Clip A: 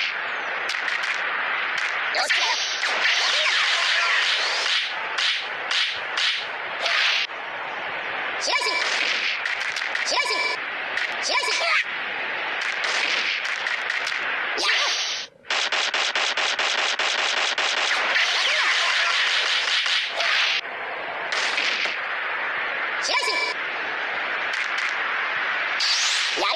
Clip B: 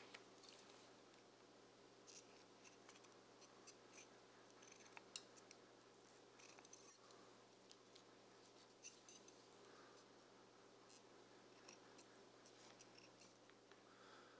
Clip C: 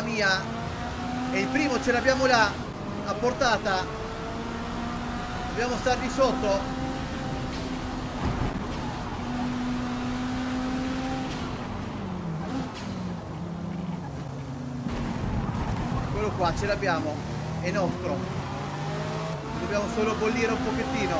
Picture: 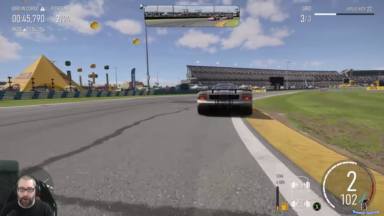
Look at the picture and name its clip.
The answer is C